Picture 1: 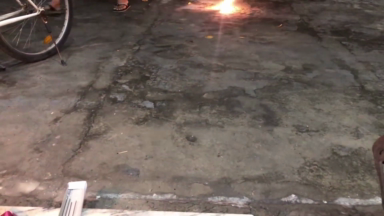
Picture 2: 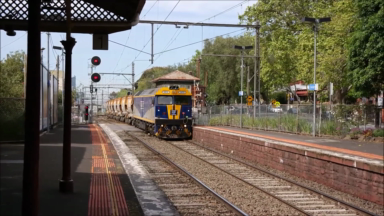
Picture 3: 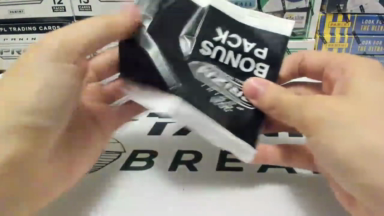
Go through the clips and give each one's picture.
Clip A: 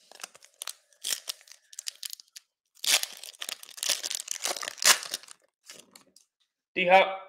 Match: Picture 3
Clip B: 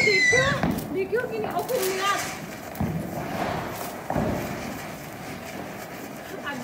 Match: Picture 1